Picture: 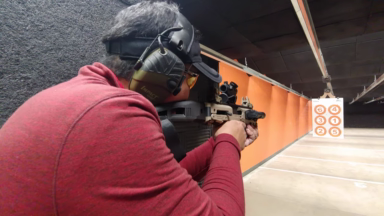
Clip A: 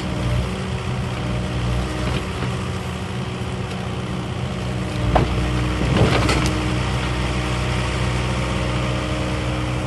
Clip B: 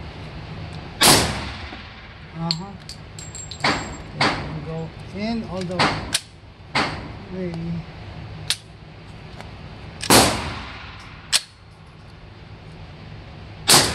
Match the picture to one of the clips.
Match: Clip B